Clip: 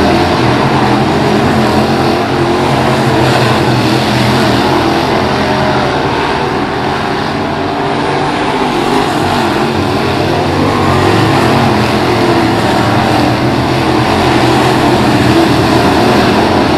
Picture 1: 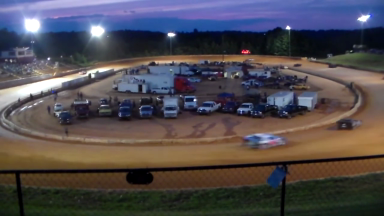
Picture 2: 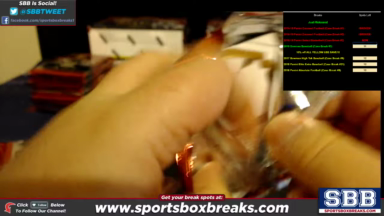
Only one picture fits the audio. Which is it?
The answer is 1